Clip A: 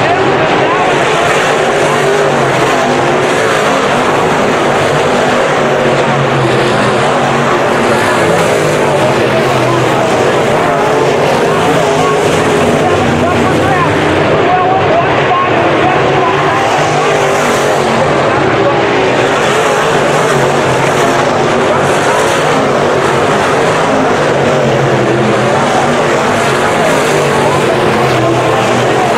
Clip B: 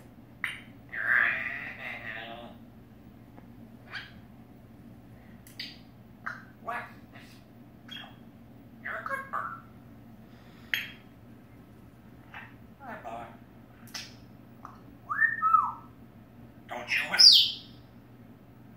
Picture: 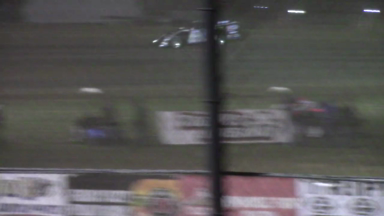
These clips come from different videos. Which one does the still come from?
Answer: A